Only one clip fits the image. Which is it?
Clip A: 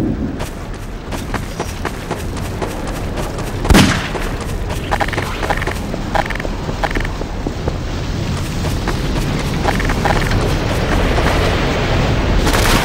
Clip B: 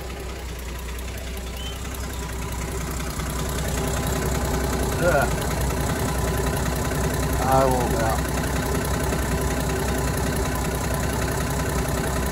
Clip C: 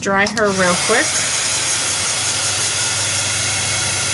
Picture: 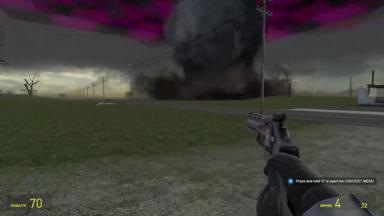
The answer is A